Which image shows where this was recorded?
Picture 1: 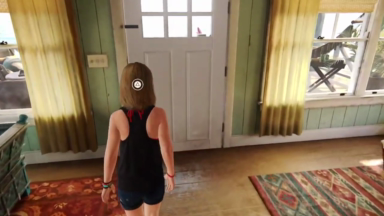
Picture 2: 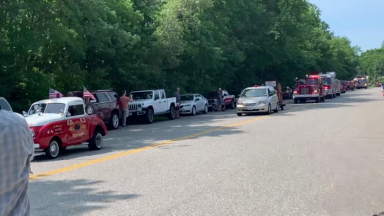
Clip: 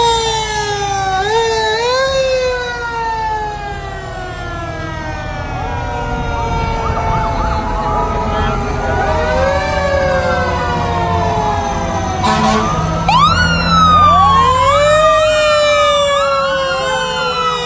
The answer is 2